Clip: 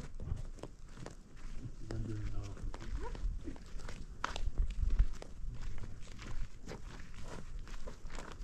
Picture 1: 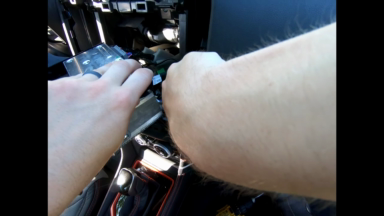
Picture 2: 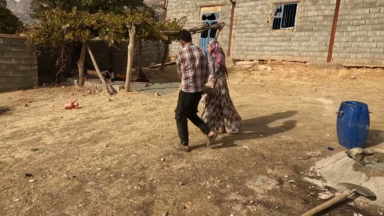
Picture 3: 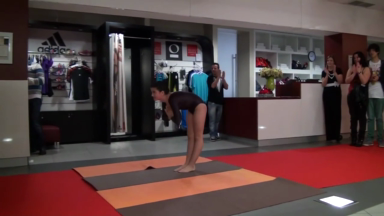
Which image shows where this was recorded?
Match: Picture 2